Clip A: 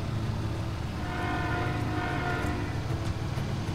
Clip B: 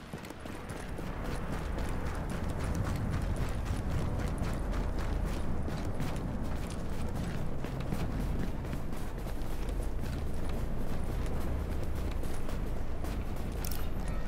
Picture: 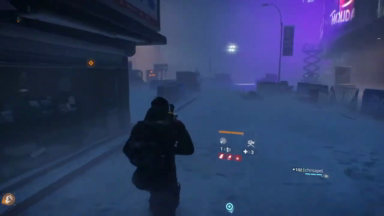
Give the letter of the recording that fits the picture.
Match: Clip B